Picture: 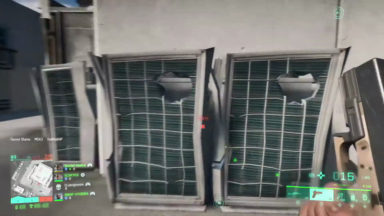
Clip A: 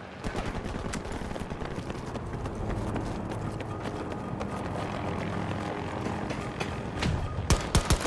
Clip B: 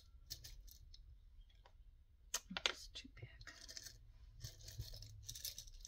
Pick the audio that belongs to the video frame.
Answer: A